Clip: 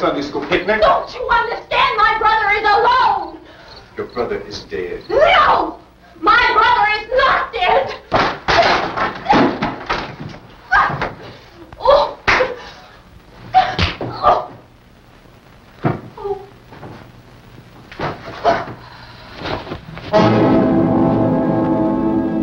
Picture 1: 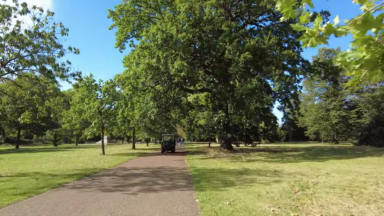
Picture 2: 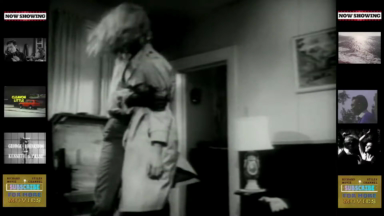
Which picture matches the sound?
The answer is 2